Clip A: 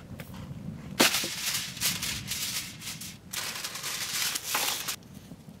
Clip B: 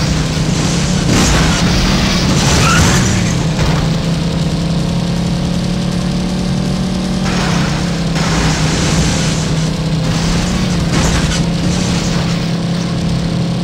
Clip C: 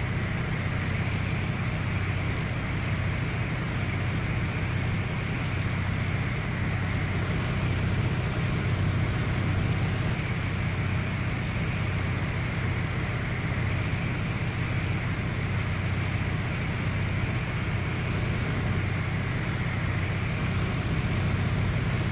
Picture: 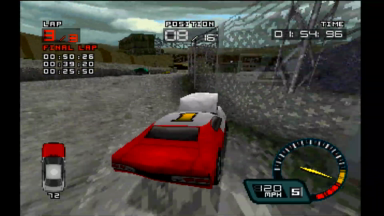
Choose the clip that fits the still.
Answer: B